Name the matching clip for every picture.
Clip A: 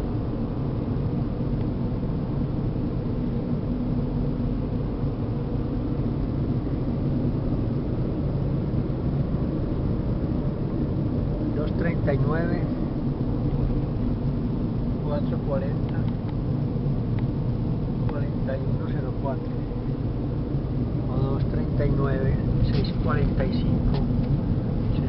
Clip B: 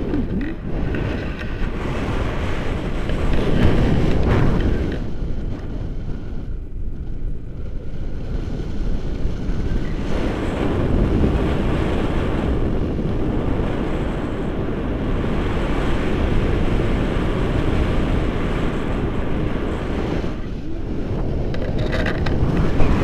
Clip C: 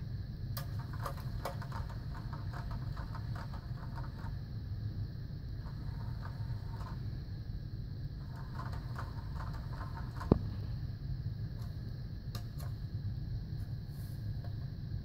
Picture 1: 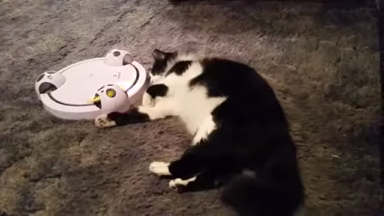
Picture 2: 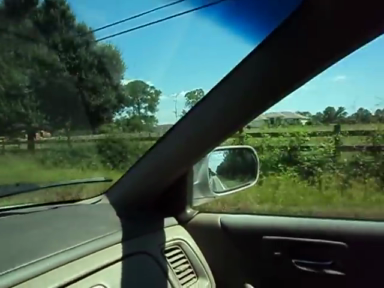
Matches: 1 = C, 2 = A